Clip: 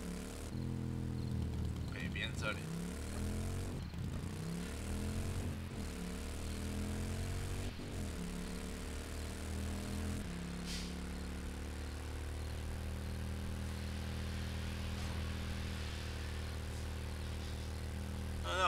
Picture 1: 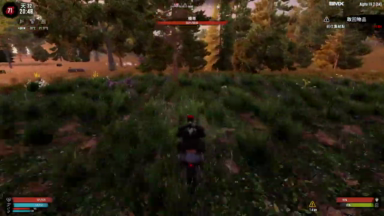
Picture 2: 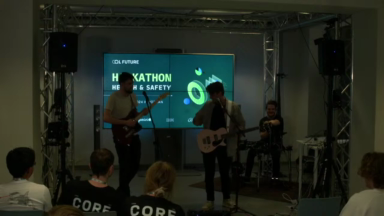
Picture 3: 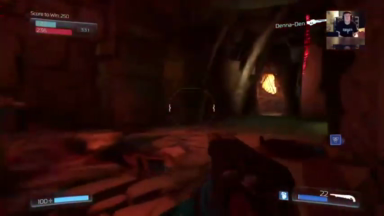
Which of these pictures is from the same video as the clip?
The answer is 1